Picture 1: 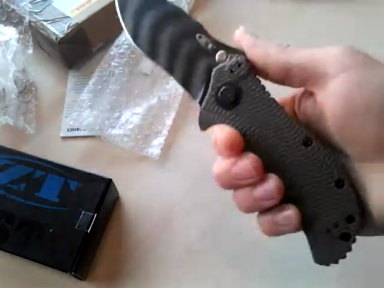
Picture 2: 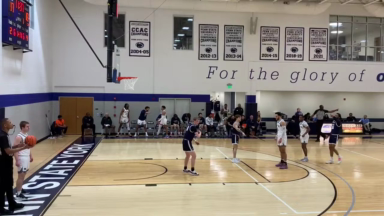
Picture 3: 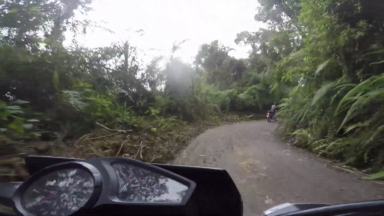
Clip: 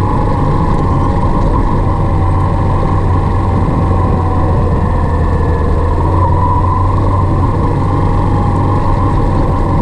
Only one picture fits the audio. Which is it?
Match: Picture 3